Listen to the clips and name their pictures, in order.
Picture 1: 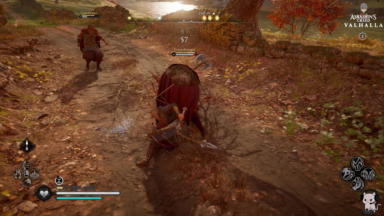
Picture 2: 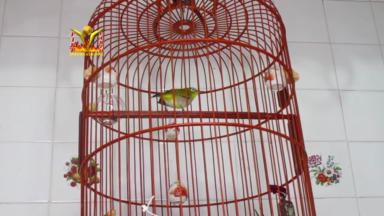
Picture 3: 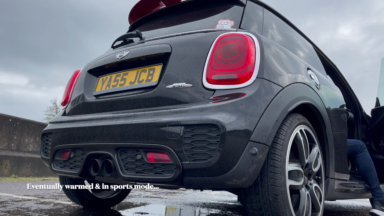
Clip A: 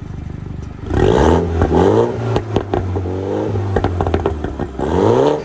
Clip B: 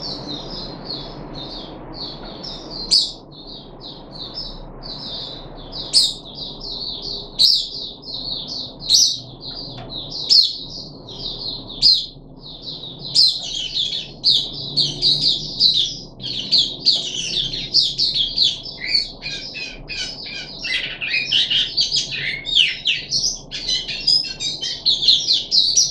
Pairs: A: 3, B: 2